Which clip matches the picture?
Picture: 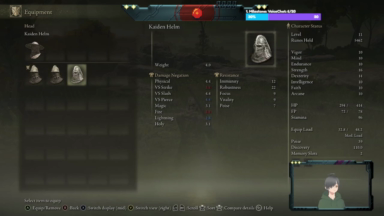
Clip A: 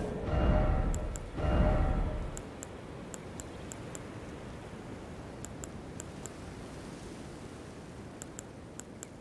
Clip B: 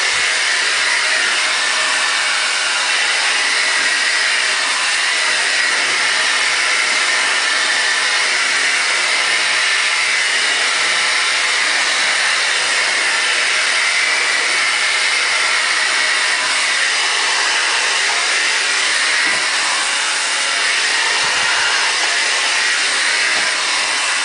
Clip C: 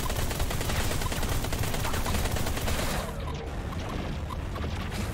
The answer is A